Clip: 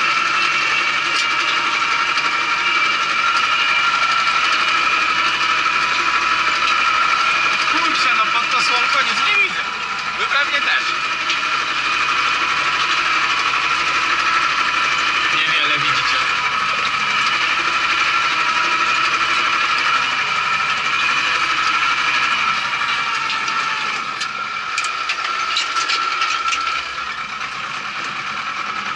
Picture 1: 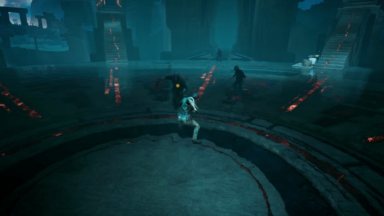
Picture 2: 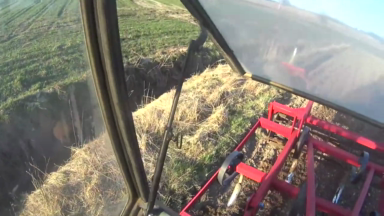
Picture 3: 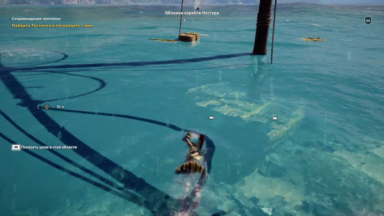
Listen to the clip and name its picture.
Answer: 2